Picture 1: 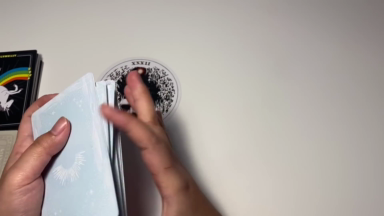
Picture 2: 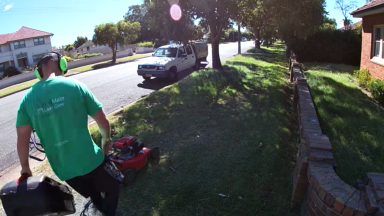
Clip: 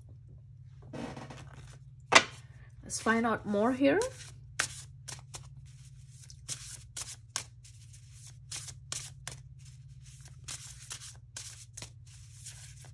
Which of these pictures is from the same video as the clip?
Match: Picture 1